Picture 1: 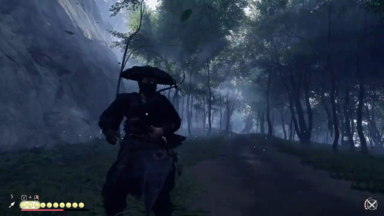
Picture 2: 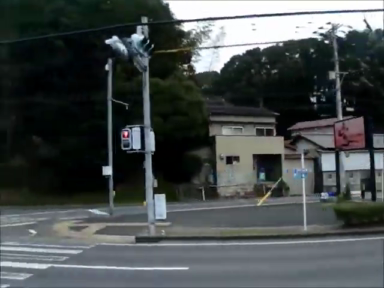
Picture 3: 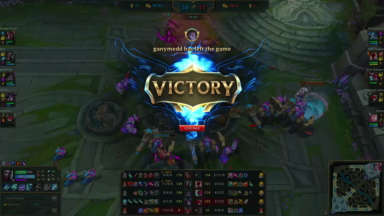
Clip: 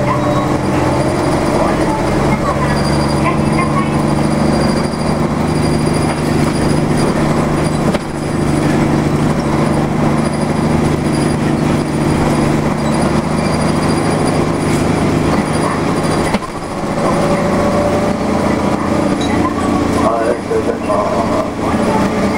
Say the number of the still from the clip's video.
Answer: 2